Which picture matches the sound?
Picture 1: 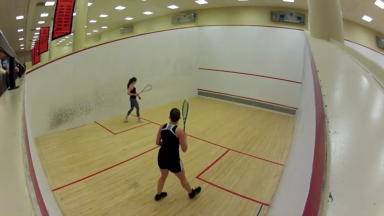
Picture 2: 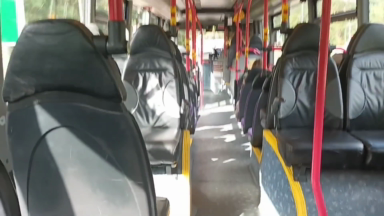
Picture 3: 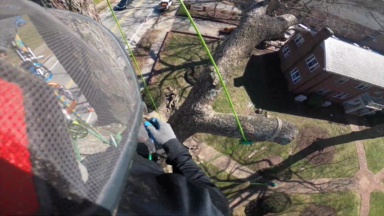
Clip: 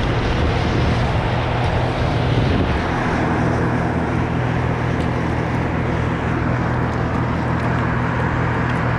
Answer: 3